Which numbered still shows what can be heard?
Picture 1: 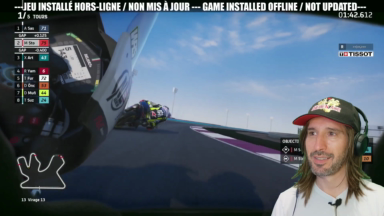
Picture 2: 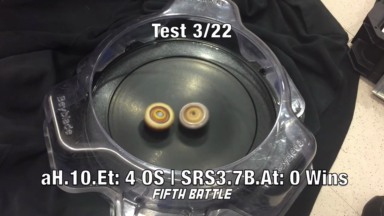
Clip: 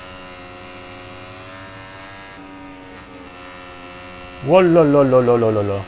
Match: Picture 1